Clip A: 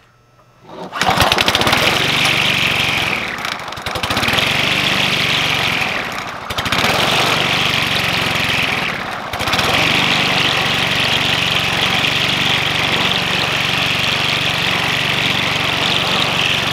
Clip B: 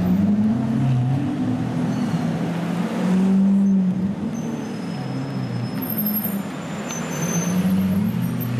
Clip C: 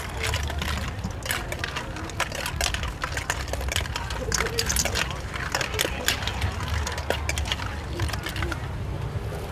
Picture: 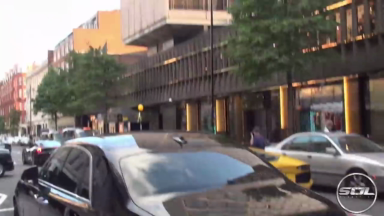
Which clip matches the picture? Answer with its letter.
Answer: B